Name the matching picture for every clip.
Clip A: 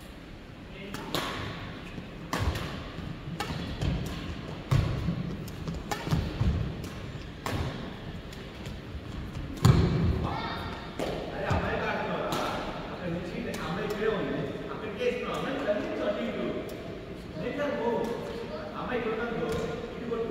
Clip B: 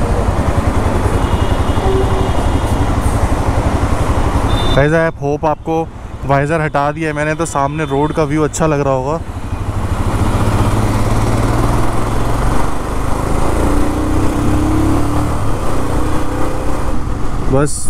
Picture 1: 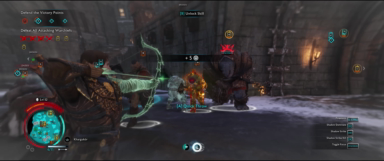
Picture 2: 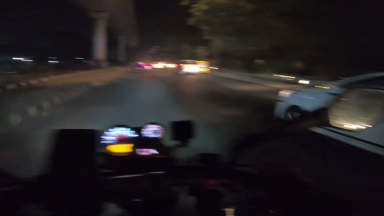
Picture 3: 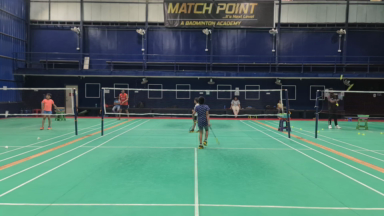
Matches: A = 3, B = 2